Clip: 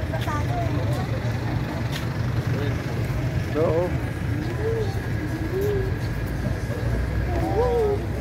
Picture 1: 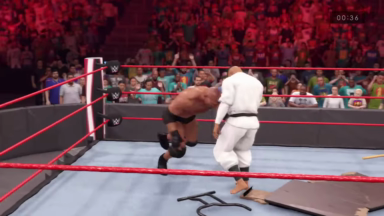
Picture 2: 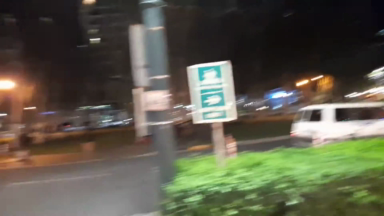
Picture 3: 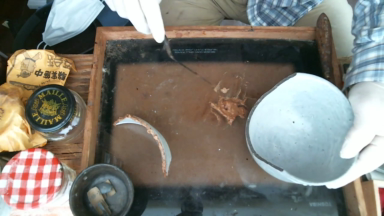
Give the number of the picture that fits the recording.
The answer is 2